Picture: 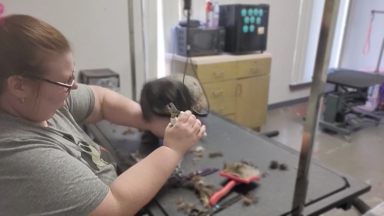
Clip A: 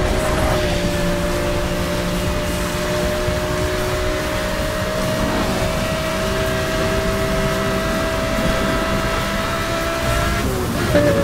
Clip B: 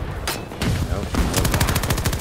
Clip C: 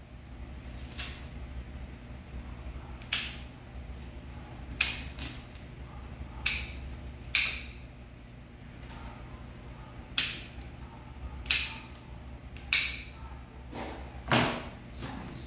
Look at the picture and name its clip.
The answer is C